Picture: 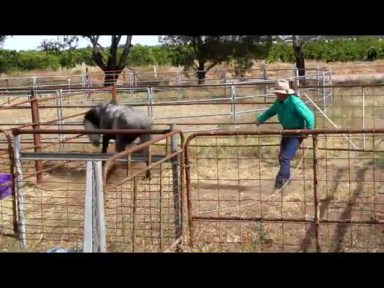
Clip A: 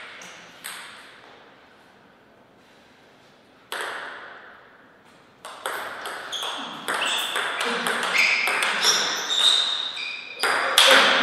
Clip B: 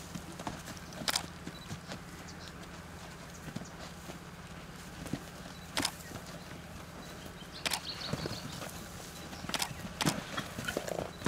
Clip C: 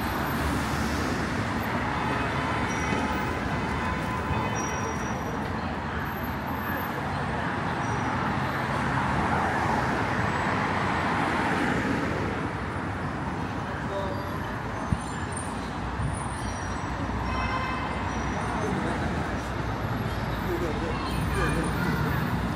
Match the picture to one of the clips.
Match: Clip B